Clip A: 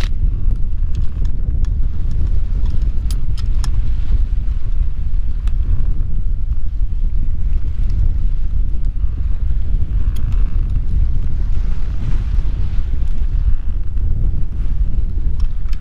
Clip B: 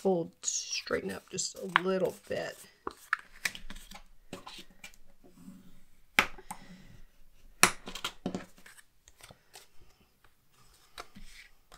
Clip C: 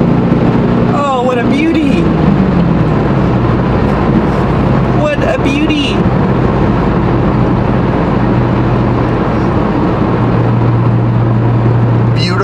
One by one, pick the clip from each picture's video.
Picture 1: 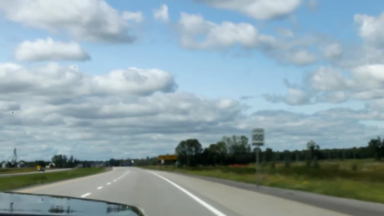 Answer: C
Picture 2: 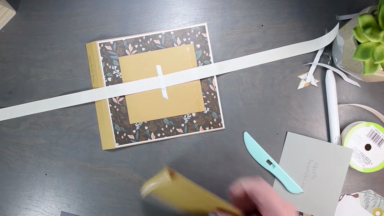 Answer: B